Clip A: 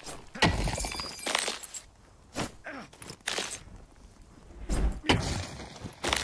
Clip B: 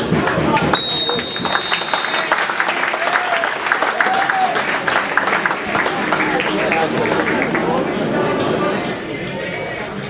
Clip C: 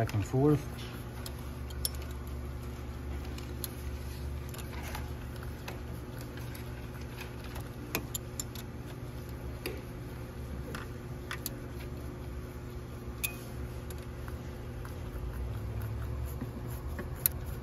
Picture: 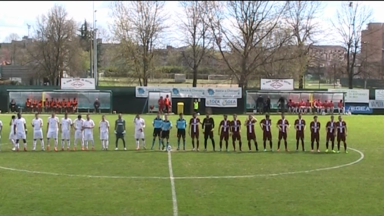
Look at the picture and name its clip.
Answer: B